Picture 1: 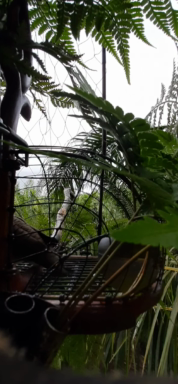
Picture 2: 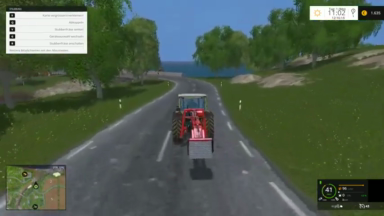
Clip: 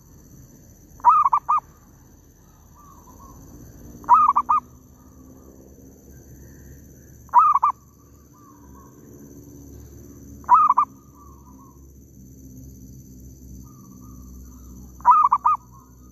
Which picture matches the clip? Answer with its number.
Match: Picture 1